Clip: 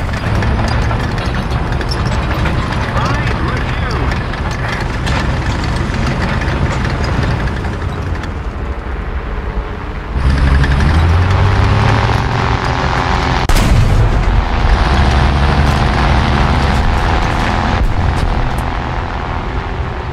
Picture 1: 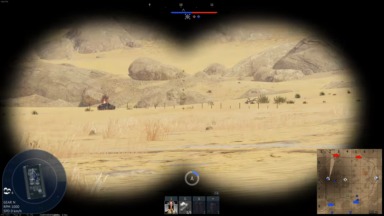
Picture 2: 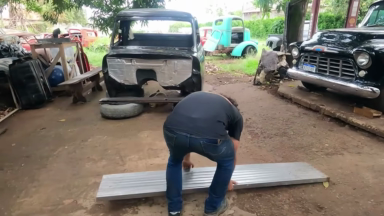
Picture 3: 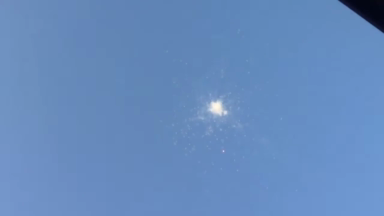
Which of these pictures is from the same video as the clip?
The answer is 1